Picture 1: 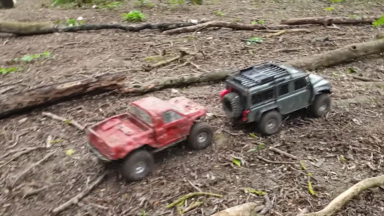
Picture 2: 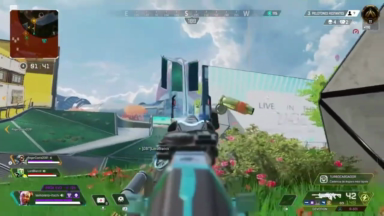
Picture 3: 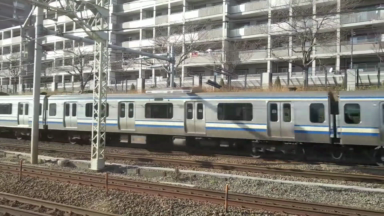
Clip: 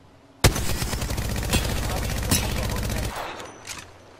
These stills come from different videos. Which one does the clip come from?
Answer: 2